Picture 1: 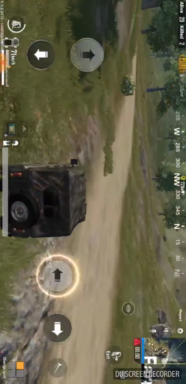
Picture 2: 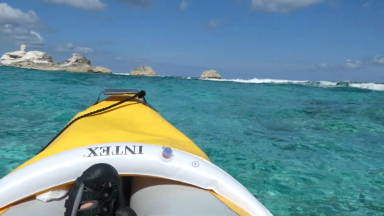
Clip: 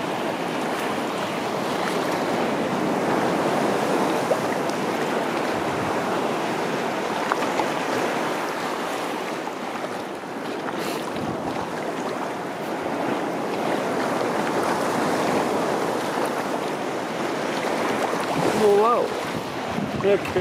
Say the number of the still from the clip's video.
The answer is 2